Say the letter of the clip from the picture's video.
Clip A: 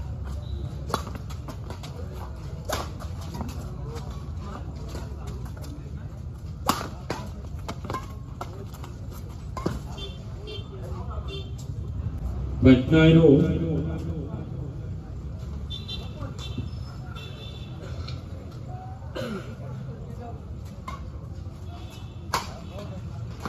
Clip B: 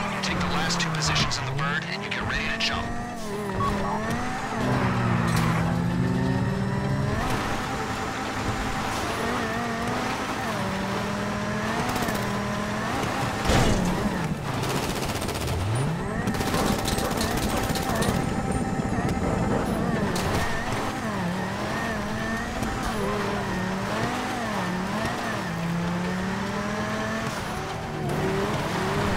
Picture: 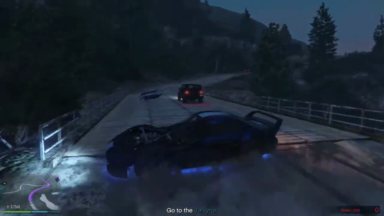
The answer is B